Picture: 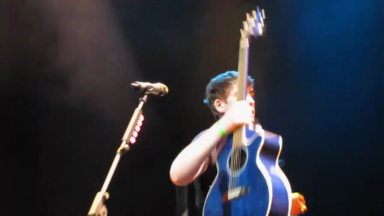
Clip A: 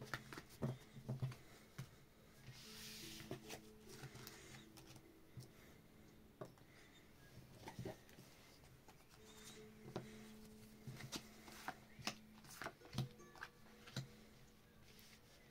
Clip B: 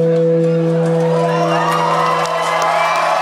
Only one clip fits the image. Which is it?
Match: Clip B